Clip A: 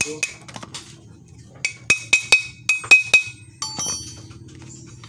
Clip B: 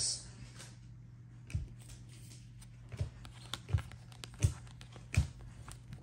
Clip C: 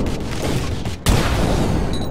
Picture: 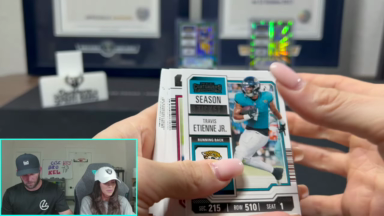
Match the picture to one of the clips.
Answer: B